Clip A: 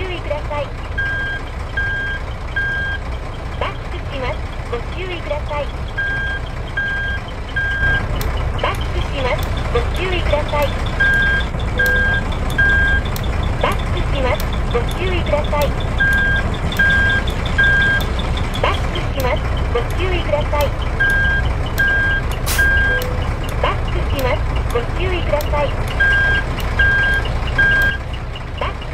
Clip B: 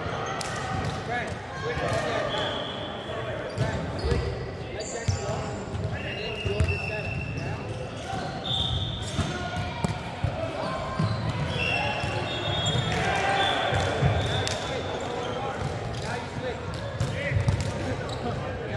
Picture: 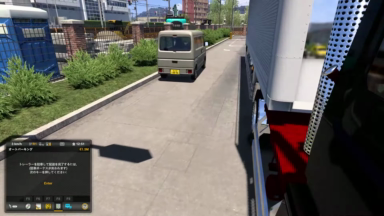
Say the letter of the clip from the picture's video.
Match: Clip A